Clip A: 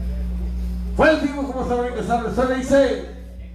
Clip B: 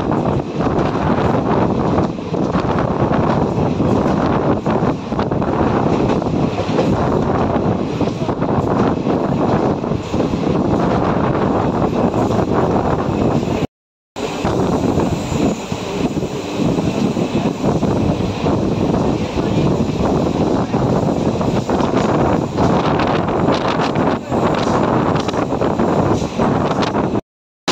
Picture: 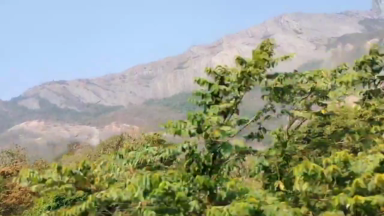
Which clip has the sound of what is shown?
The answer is B